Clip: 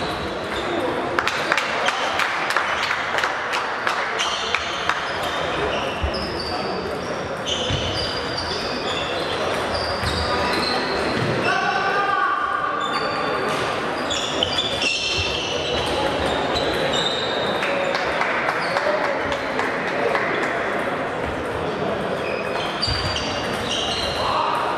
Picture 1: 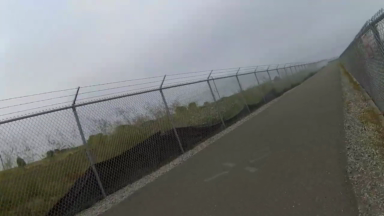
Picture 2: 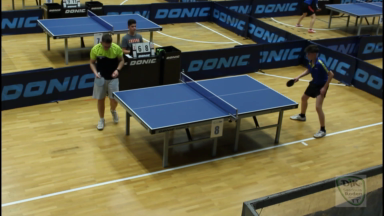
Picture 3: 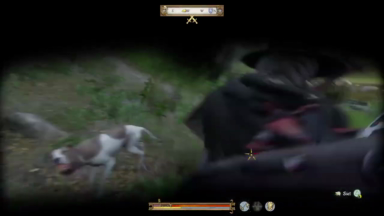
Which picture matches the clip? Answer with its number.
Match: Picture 2